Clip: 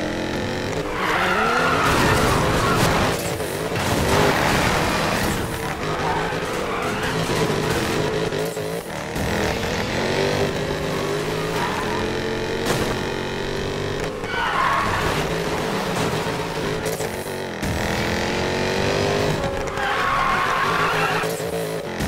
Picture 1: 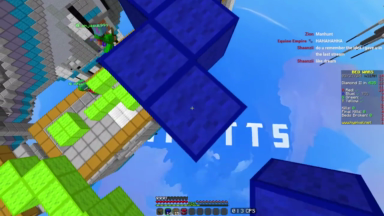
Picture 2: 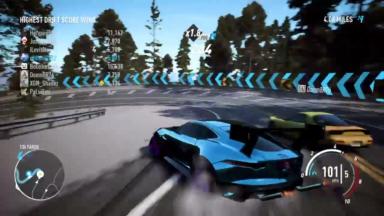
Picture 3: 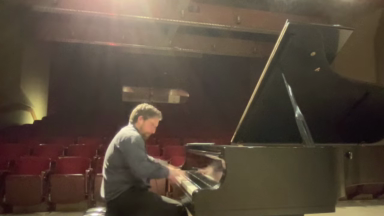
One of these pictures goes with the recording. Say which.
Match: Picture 2